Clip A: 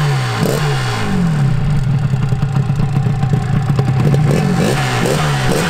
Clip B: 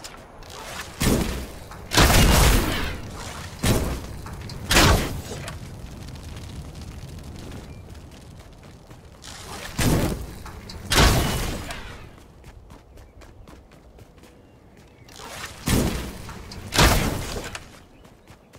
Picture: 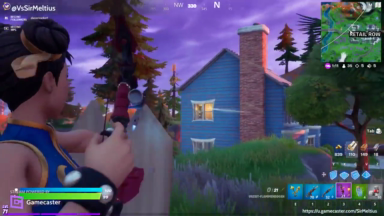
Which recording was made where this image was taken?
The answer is B